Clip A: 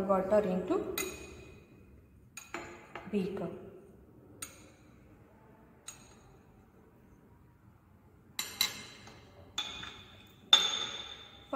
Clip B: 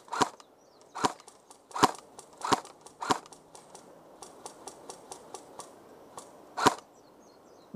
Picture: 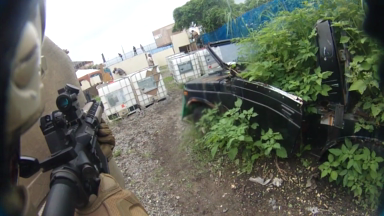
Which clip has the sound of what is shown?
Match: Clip B